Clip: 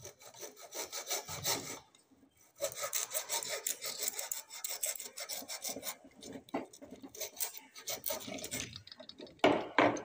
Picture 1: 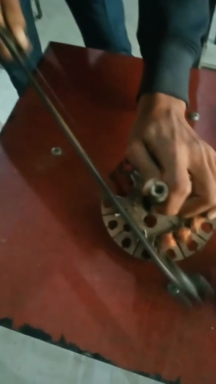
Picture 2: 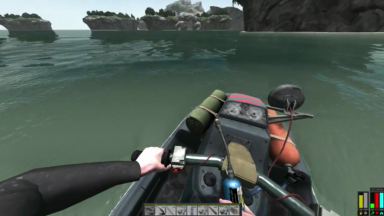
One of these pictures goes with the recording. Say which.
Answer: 1